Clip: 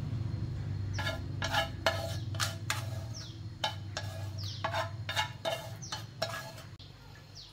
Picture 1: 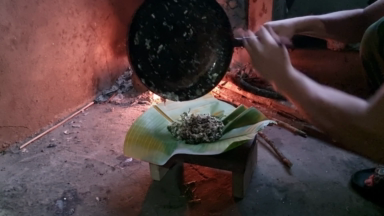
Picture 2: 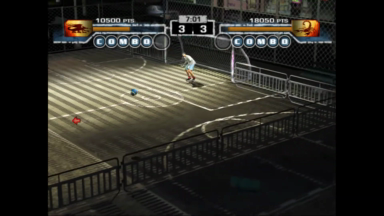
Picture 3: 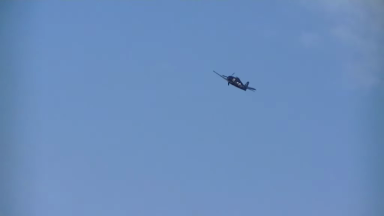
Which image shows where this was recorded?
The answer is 1